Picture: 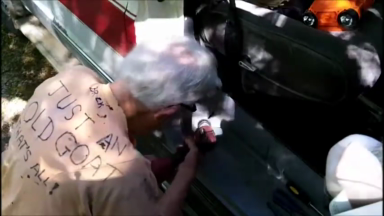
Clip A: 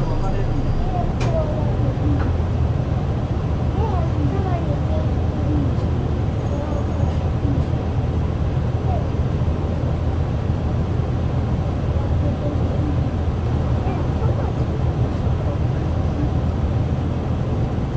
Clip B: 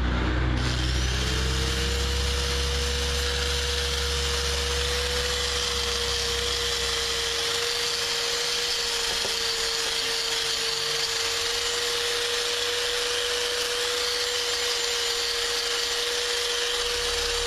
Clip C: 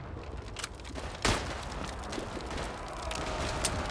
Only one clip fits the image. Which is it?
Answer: B